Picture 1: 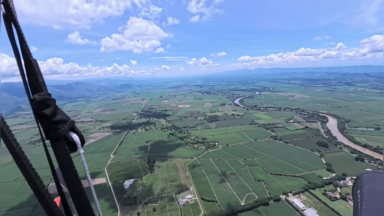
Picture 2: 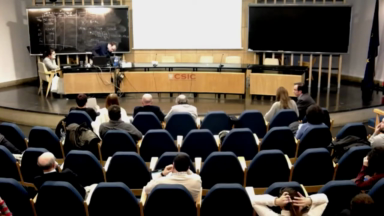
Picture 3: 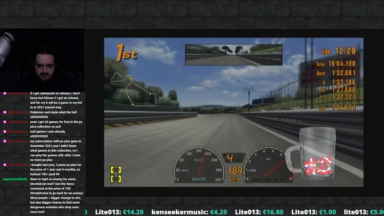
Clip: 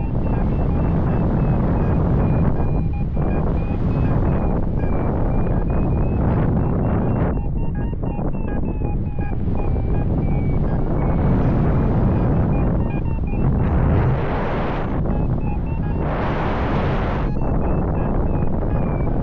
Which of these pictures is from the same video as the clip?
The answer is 1